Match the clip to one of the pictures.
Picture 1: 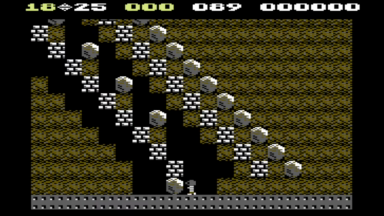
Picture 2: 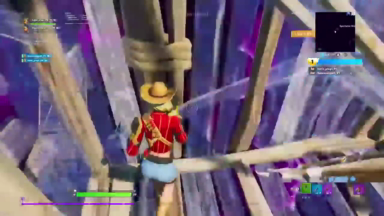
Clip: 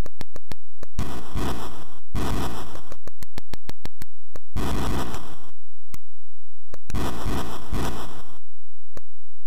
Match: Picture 1